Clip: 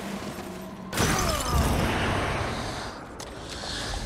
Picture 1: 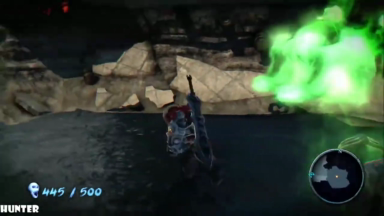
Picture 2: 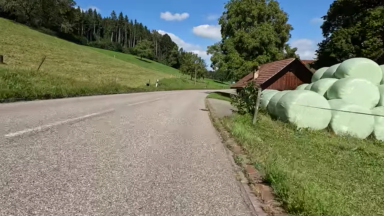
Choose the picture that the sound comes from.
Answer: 1